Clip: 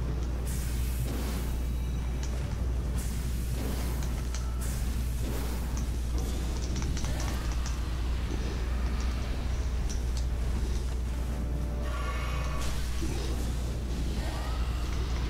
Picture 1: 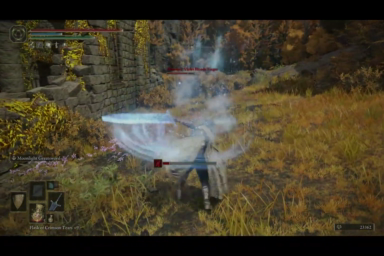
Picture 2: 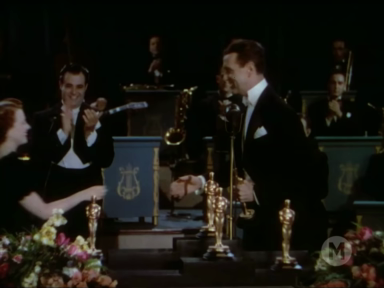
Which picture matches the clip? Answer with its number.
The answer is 1